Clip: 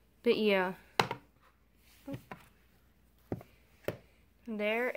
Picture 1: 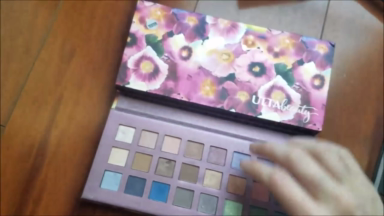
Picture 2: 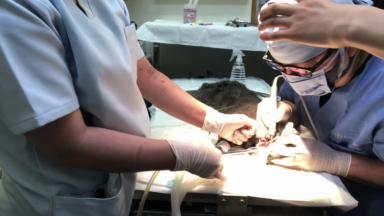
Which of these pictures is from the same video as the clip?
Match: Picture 1